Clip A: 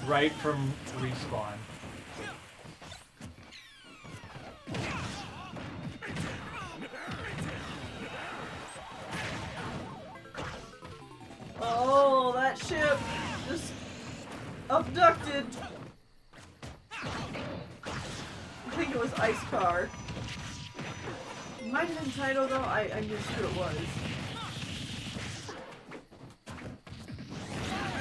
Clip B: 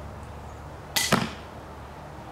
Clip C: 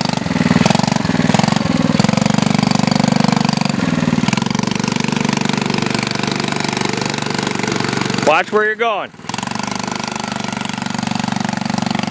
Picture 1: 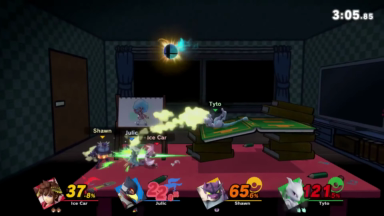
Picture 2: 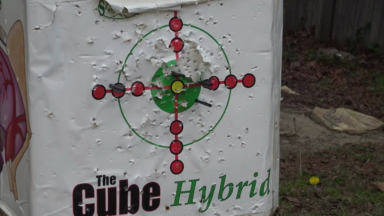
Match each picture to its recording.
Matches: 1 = A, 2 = B